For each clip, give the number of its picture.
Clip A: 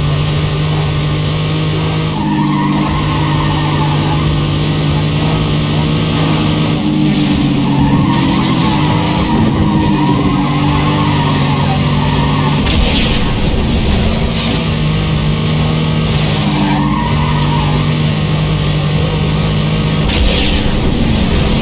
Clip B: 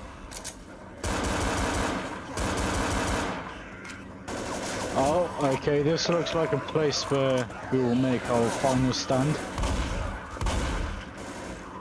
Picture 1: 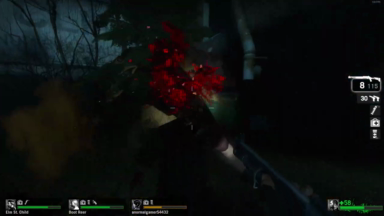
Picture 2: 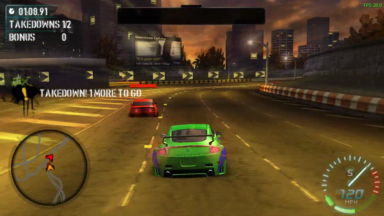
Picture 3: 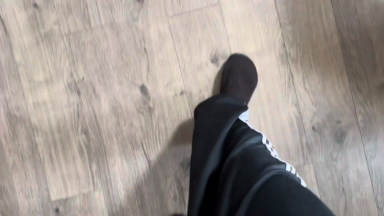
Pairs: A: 2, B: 1